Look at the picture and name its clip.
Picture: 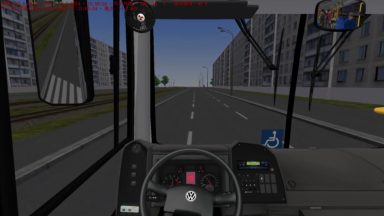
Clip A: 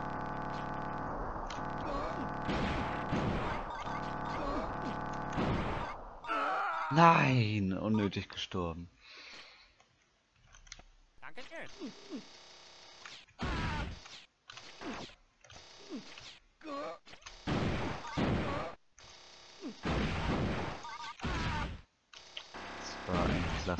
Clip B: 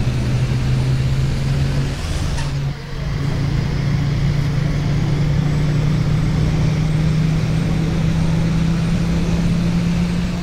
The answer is B